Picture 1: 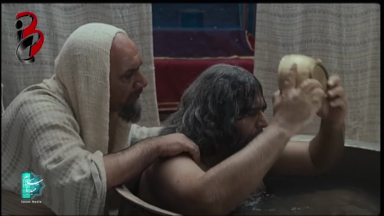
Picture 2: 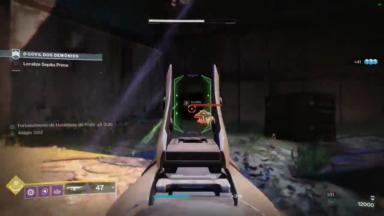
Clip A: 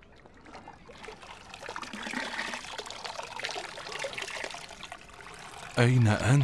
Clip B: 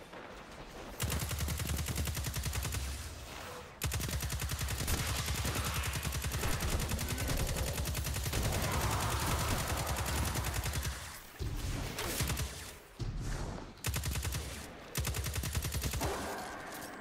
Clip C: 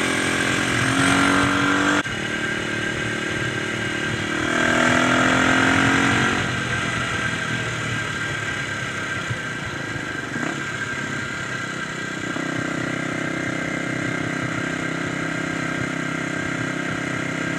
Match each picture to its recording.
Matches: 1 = A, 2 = B